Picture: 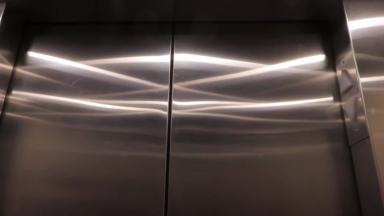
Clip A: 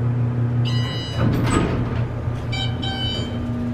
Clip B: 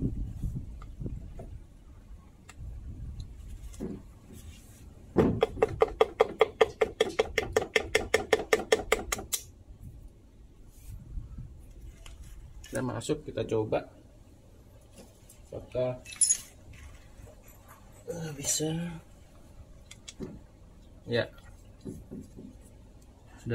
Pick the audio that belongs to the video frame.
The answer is A